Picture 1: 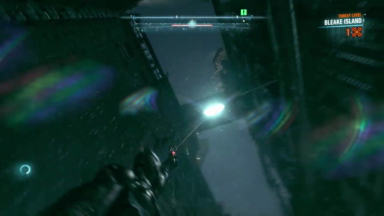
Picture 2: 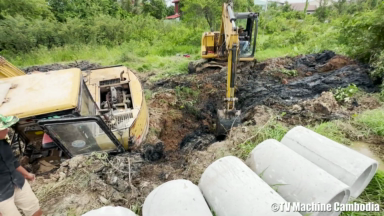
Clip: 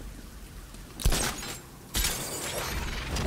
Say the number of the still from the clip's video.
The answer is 1